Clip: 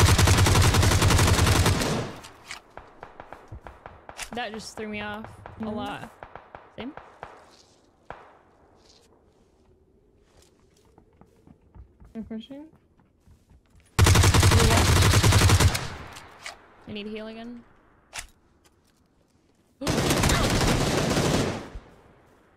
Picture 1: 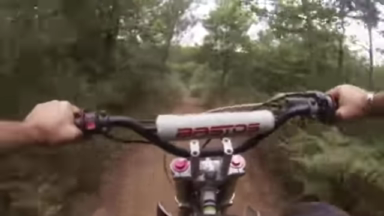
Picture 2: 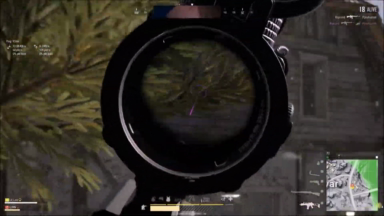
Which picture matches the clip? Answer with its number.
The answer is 2